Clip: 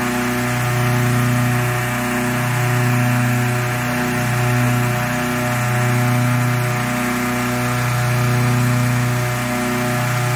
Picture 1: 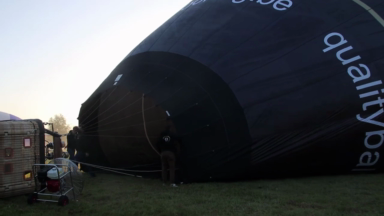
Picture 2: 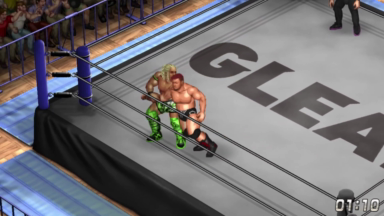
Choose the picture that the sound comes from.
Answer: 1